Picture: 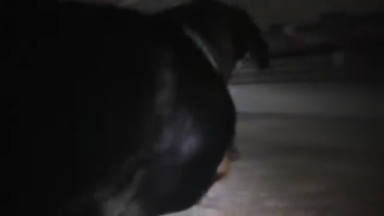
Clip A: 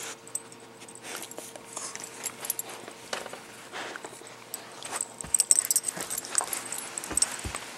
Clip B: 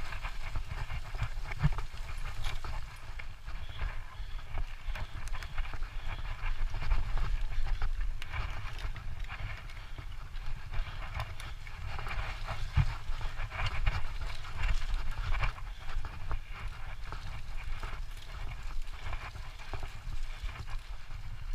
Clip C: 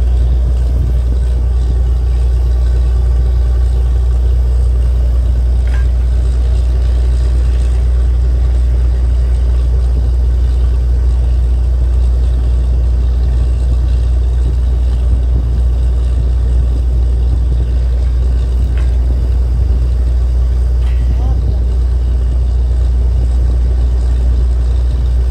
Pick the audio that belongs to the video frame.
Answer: A